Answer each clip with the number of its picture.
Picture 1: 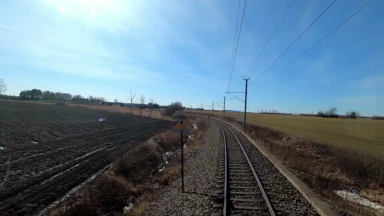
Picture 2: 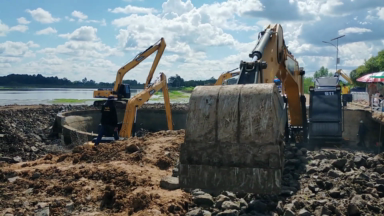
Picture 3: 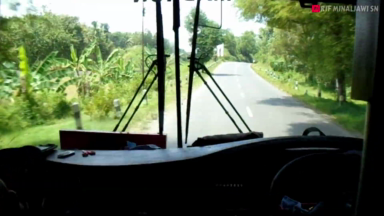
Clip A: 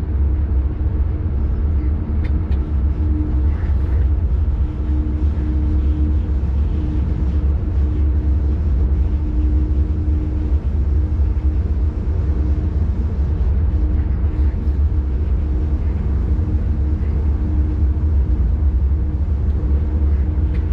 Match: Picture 1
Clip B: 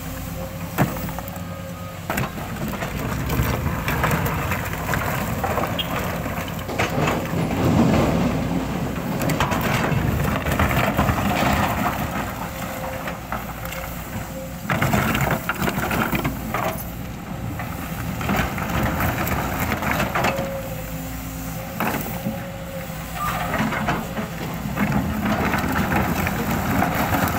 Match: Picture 2